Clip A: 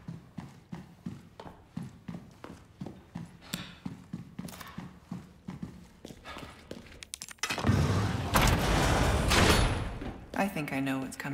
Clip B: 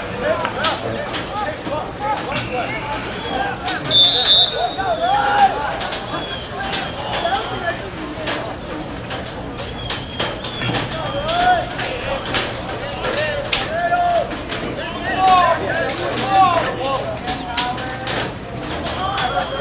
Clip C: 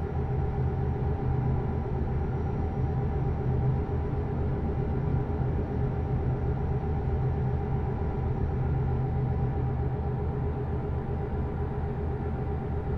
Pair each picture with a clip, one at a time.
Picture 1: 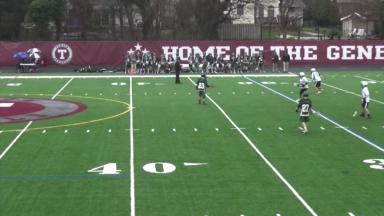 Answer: B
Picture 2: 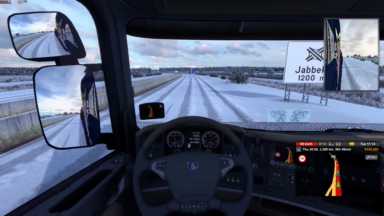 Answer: C